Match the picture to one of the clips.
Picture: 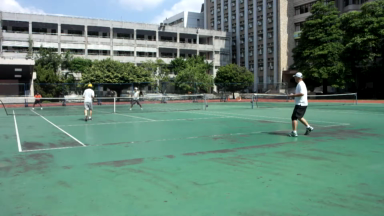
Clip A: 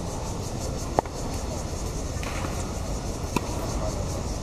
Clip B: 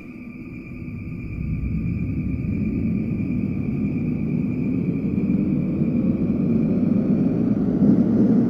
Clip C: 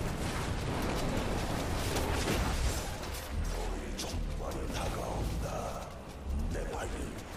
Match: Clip A